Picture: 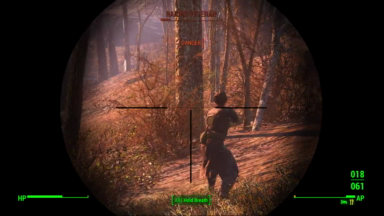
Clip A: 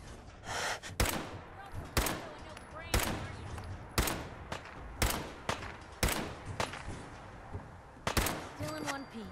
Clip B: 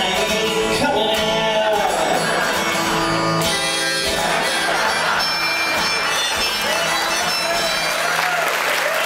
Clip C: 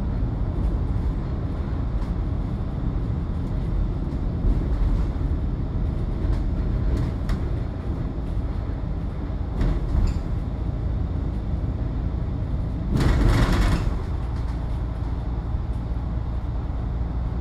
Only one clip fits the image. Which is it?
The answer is A